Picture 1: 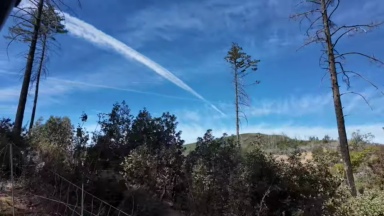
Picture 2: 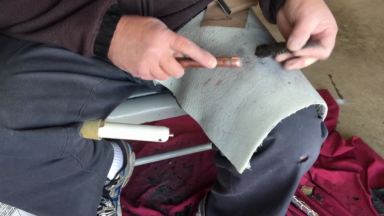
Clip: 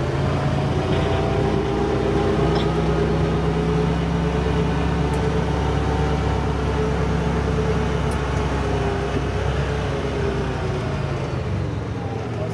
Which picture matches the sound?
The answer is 1